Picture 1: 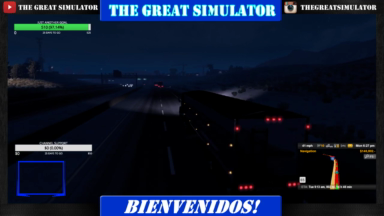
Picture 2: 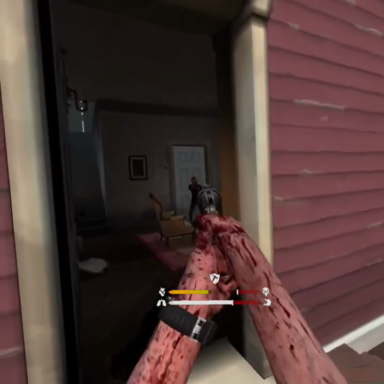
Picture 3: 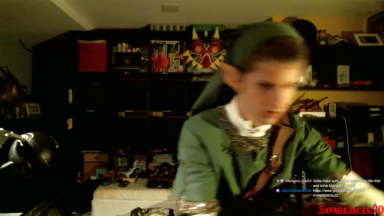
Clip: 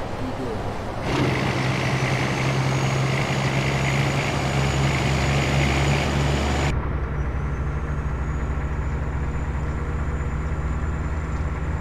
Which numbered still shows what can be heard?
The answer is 1